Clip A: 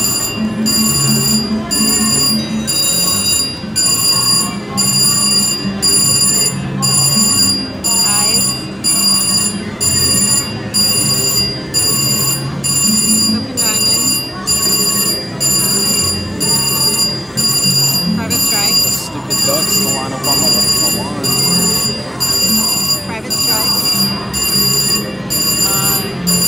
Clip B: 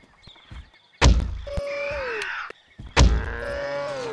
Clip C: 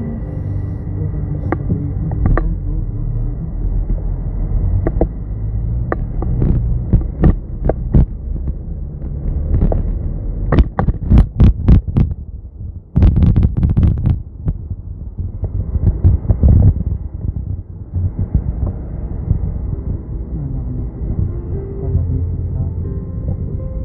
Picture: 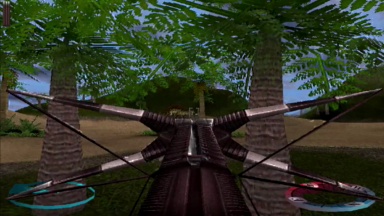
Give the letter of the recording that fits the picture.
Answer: B